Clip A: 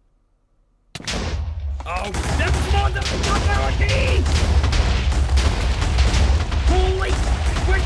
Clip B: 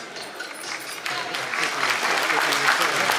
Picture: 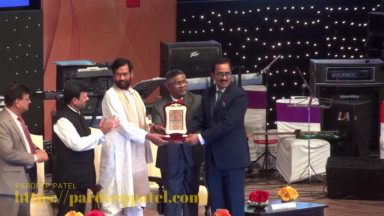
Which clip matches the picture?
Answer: B